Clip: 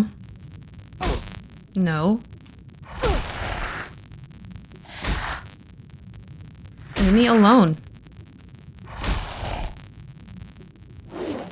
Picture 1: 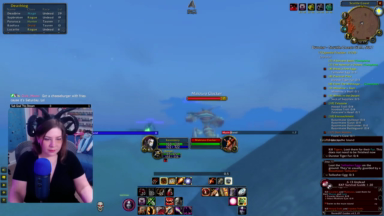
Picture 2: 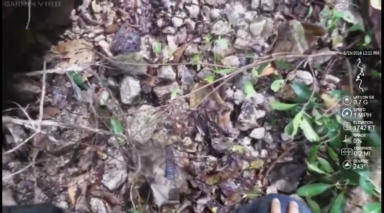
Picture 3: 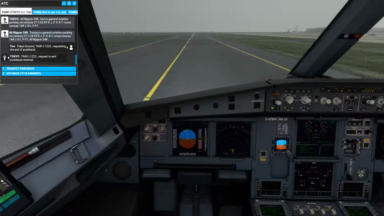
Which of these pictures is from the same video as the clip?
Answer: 1